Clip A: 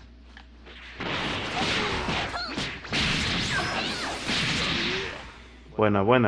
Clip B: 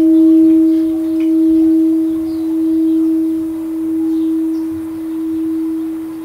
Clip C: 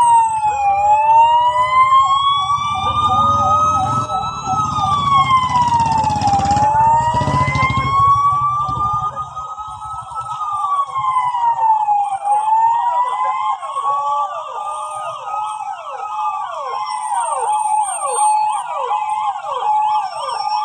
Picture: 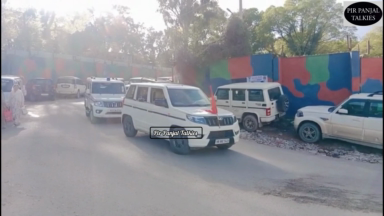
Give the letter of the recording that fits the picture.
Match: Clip C